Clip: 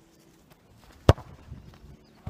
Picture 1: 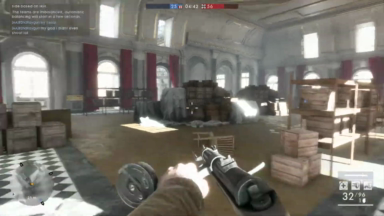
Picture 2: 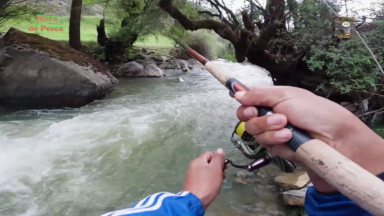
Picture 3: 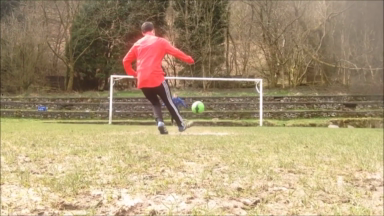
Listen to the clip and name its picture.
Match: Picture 3